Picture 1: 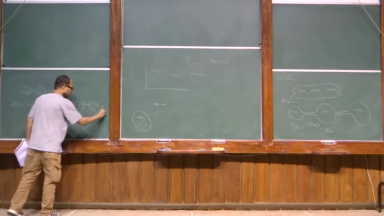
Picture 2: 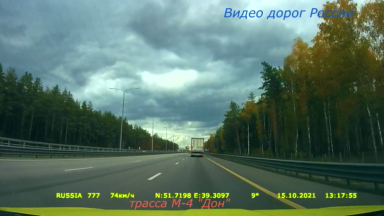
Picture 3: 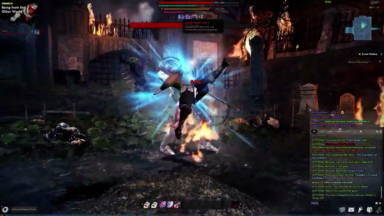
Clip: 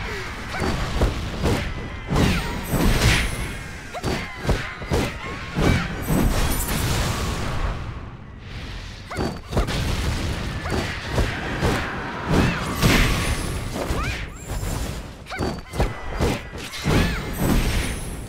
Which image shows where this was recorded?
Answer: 3